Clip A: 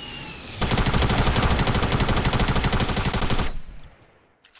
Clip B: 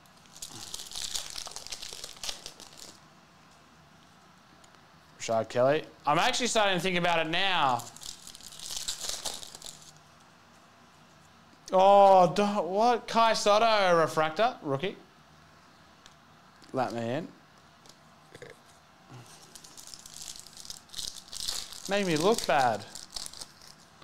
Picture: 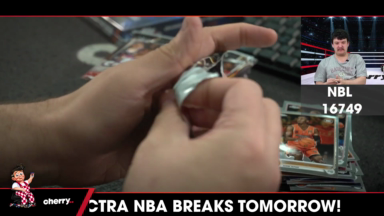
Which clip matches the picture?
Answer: B